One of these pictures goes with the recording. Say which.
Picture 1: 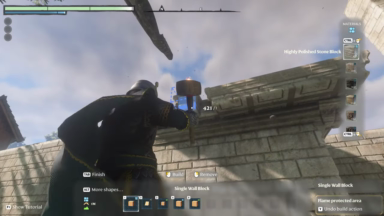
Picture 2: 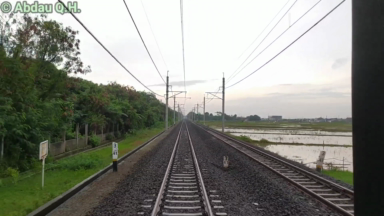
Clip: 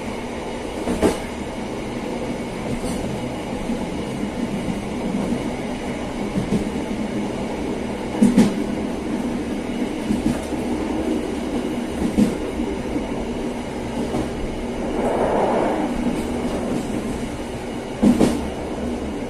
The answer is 2